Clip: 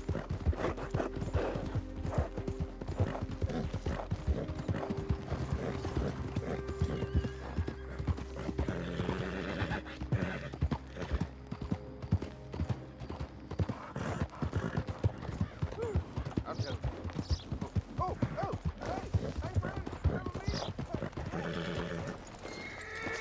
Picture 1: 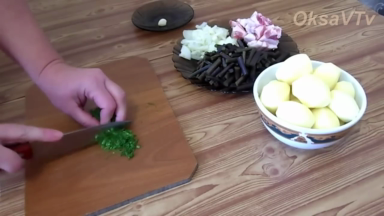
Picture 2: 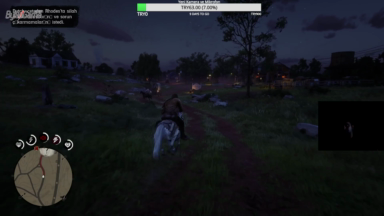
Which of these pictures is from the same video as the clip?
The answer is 2